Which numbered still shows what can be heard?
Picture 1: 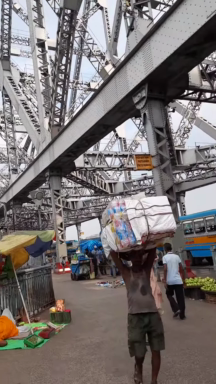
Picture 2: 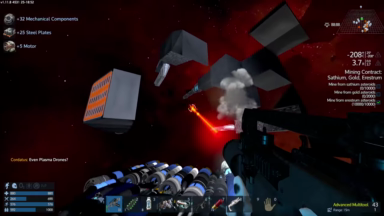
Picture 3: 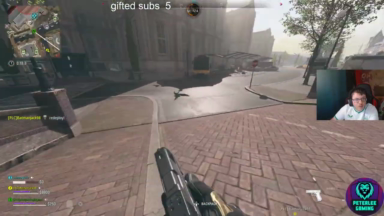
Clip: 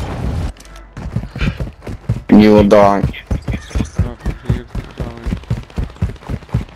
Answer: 3